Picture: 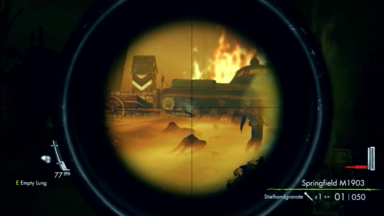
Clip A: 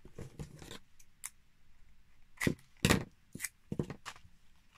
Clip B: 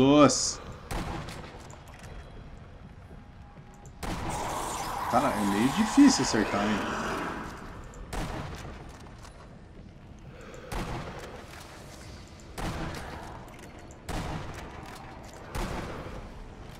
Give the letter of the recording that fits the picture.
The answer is B